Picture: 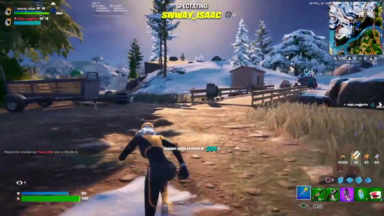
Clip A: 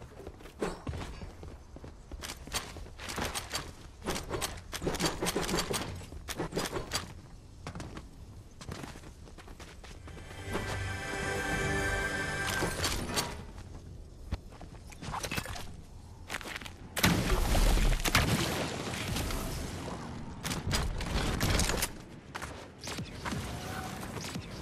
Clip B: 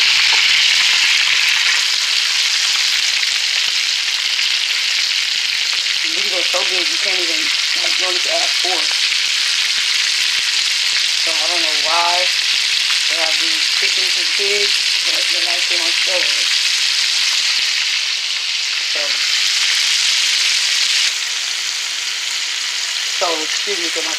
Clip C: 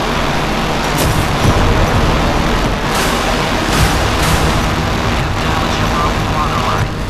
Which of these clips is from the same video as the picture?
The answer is A